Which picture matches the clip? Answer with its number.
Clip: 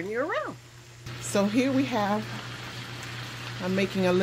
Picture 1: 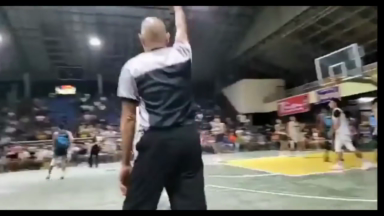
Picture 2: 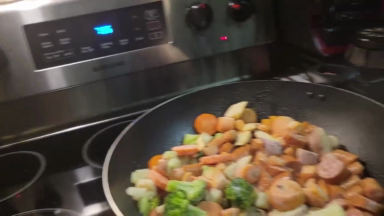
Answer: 2